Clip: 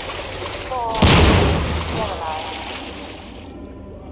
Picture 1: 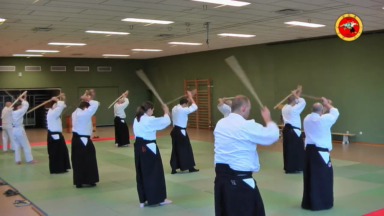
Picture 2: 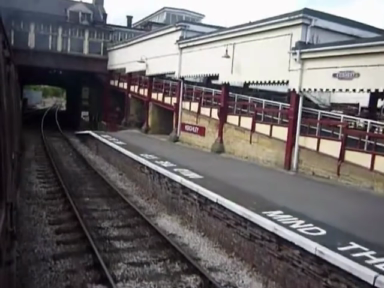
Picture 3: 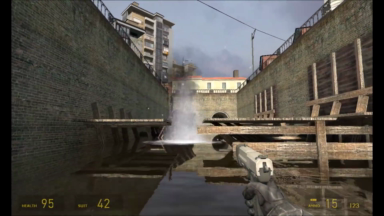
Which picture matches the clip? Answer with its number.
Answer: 3